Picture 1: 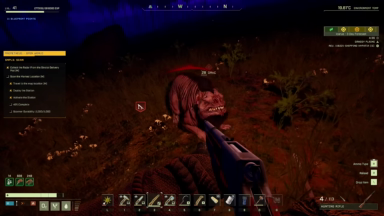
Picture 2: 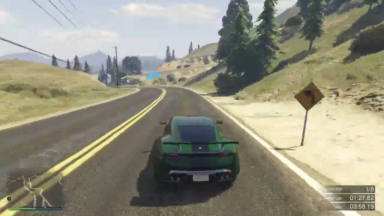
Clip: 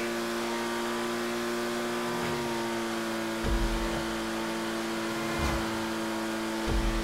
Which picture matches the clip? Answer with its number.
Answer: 2